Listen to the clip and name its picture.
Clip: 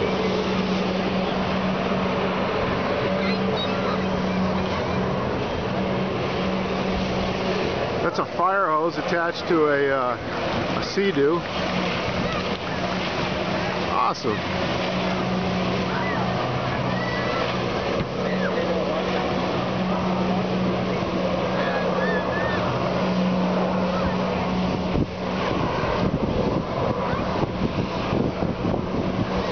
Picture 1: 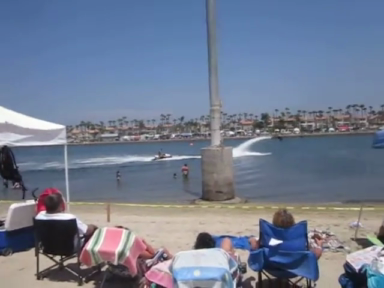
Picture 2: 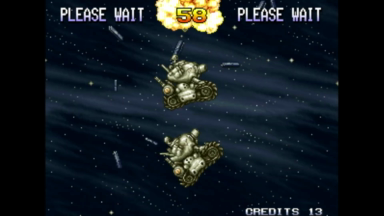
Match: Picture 1